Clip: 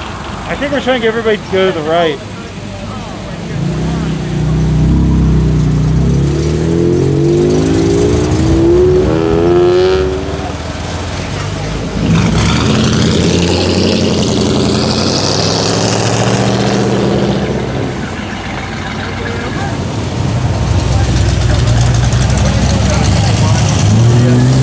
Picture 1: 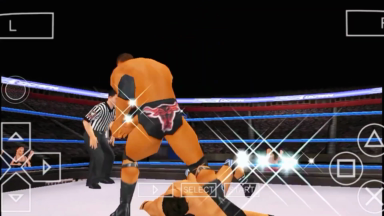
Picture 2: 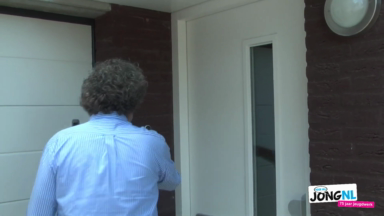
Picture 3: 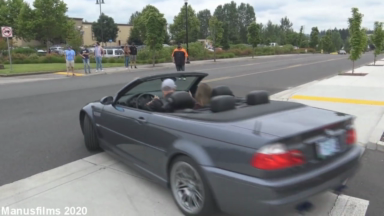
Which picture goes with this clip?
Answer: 3